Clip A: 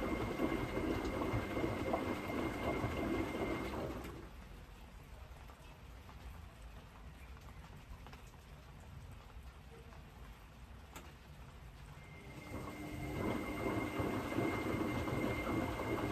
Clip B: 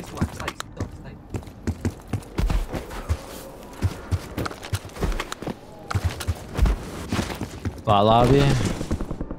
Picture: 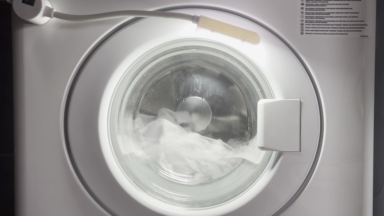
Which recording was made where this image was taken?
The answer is A